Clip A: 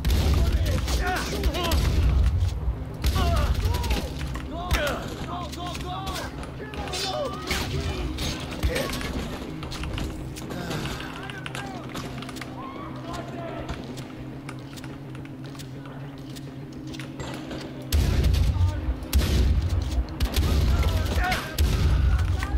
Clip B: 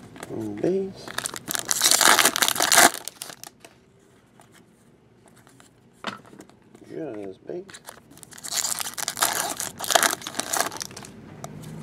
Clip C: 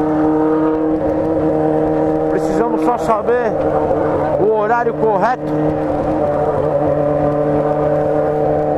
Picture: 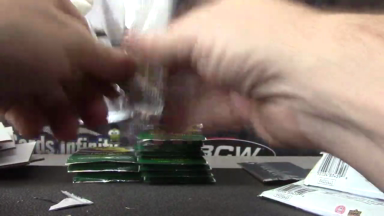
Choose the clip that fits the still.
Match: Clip B